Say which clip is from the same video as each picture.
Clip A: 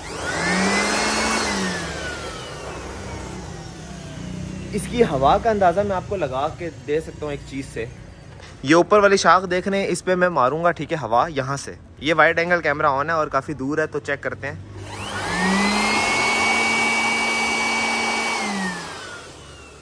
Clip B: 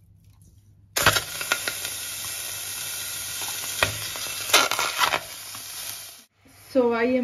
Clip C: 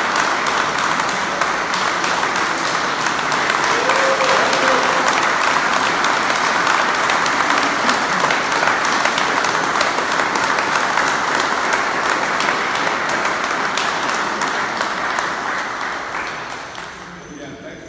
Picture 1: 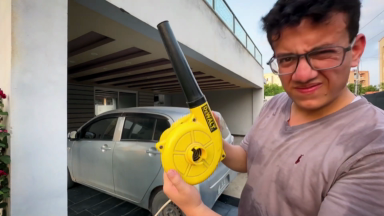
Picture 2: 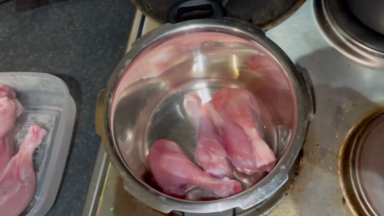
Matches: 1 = A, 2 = B